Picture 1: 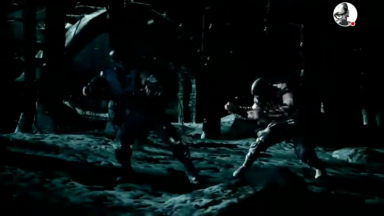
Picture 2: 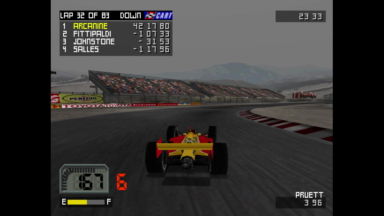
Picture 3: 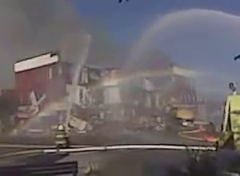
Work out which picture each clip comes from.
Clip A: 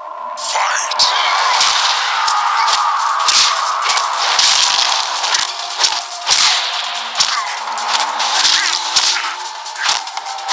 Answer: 1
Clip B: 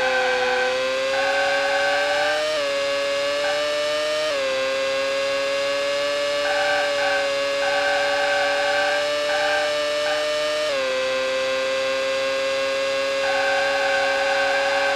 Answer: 2